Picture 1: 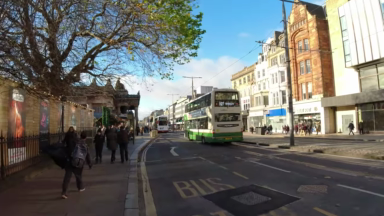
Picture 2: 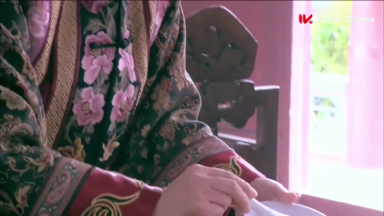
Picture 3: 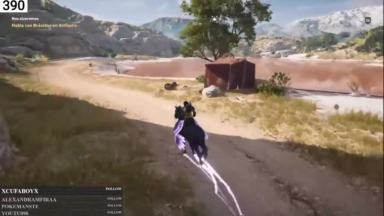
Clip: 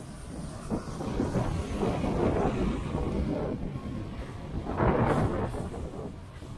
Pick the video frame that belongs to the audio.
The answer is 1